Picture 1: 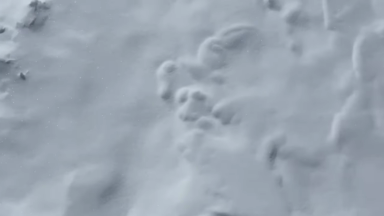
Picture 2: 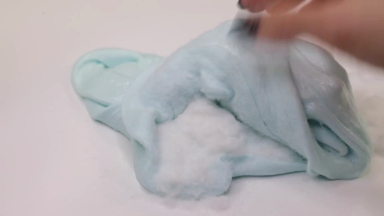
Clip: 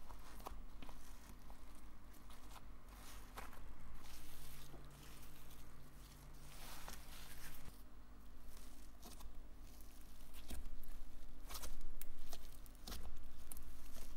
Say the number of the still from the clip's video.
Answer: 2